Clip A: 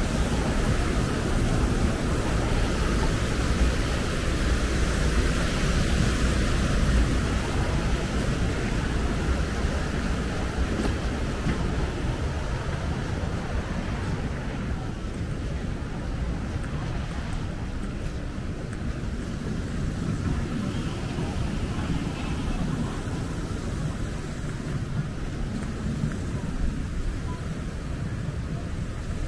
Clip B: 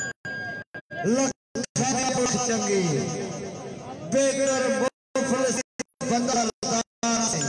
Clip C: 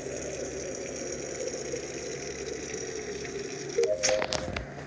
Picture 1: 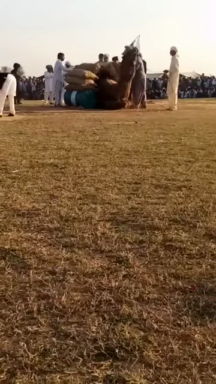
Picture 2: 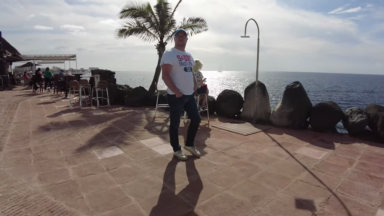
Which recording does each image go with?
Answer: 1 B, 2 A